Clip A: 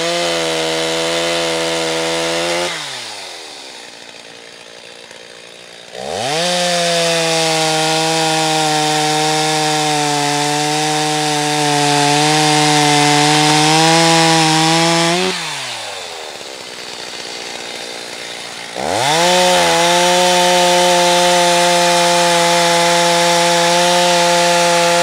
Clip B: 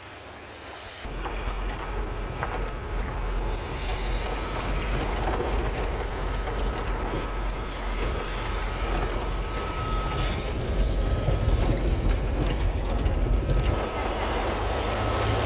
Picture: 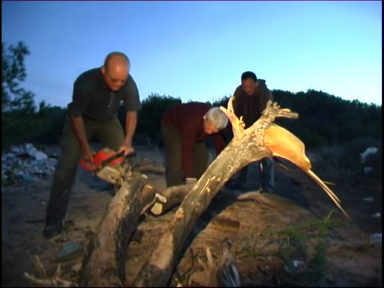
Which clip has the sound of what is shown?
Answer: A